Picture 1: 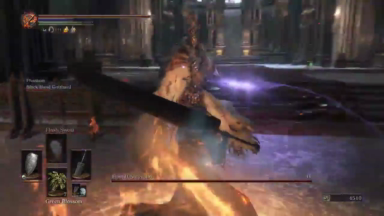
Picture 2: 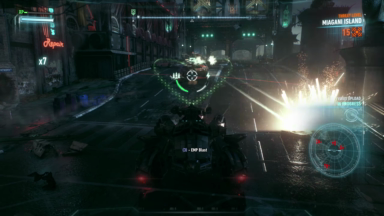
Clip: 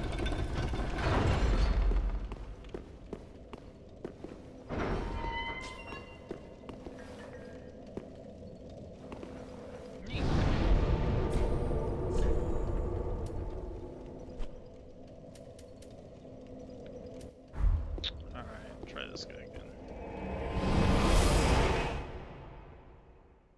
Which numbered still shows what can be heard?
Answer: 1